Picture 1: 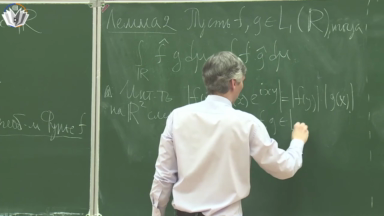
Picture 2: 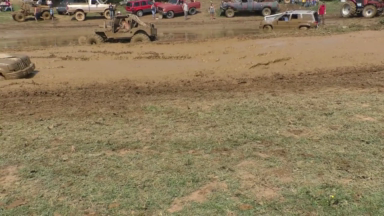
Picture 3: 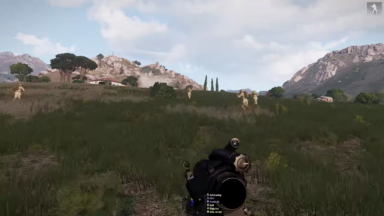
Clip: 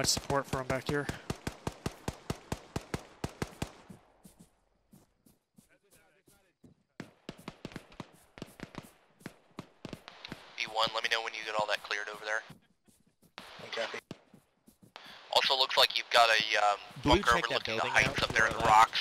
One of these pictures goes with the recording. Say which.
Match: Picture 3